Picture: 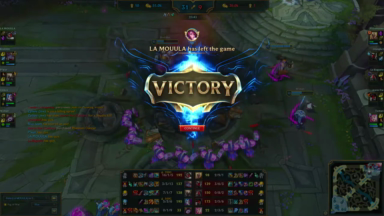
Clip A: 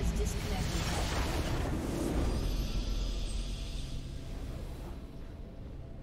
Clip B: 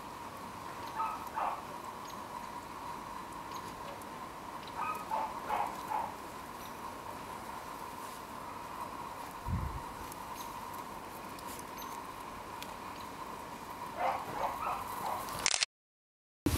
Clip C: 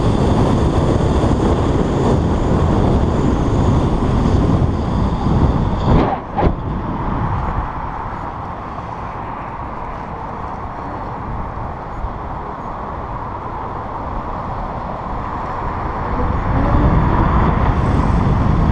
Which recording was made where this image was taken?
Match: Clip A